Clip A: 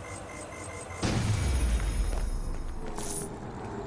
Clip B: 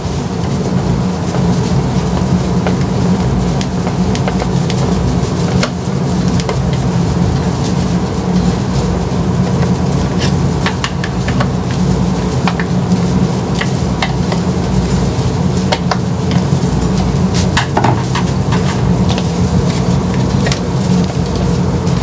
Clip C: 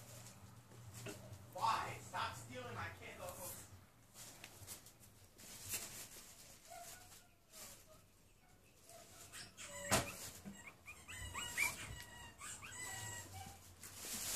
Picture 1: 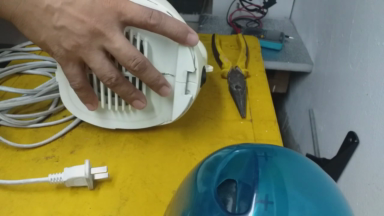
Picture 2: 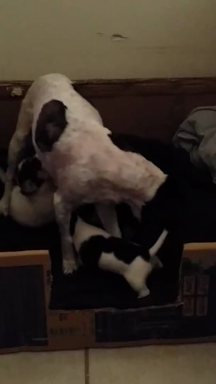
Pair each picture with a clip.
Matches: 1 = B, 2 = C